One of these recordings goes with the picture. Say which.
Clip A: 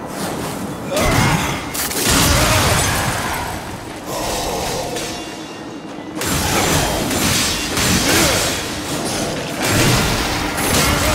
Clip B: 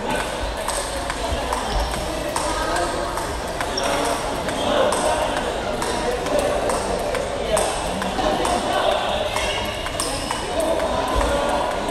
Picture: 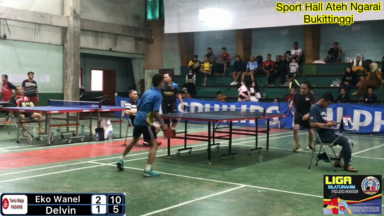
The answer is B